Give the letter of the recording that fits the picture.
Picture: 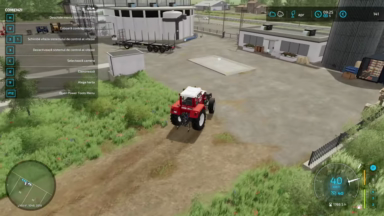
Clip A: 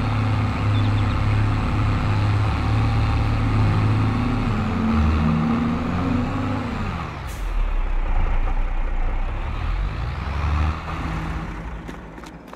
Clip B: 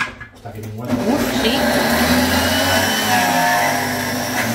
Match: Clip A